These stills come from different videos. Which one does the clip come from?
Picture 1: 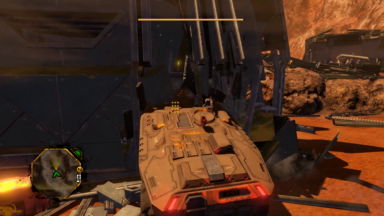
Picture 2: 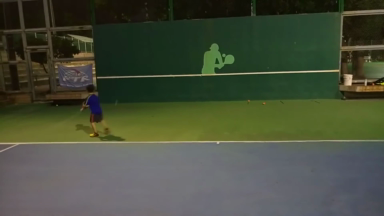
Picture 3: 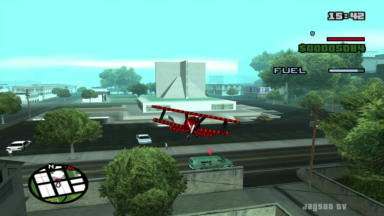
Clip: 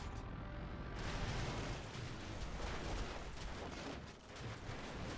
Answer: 1